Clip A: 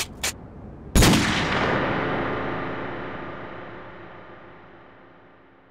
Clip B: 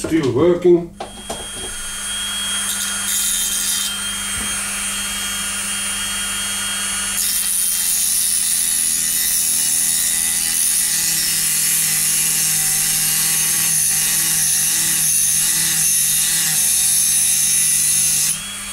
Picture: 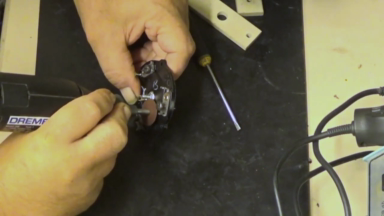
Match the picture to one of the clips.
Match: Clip B